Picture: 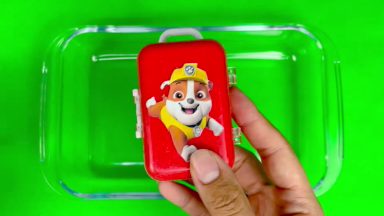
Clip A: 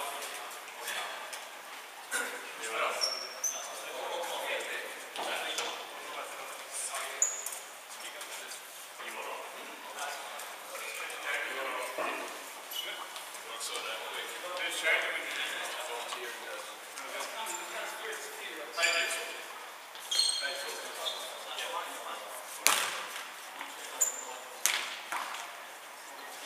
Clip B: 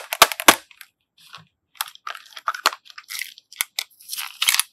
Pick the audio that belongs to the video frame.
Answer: B